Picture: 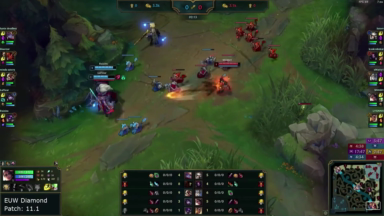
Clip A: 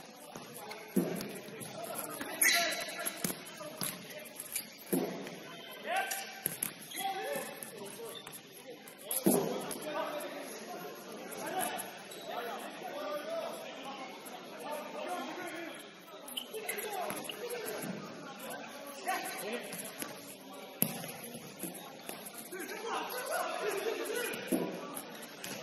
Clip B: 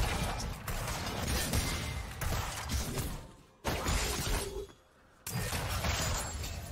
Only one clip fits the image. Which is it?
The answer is B